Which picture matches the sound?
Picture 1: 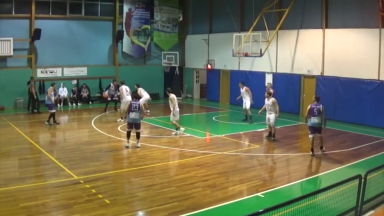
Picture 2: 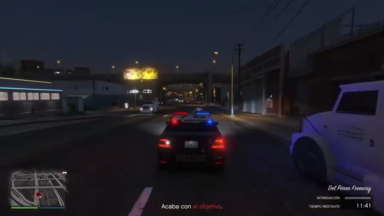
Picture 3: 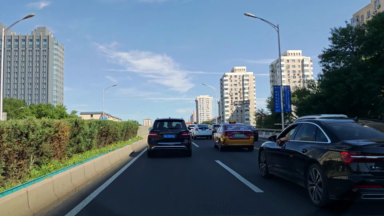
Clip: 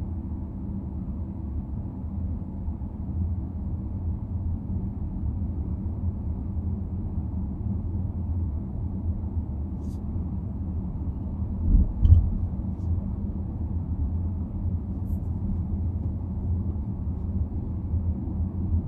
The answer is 3